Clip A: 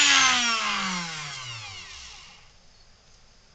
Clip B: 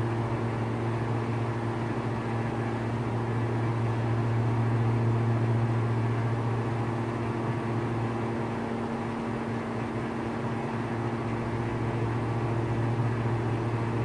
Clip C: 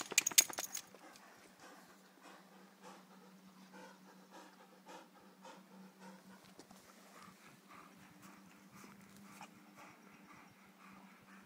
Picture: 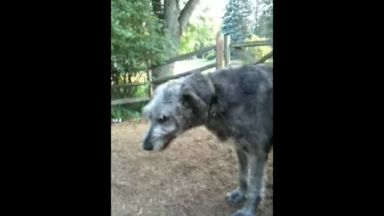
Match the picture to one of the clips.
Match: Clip C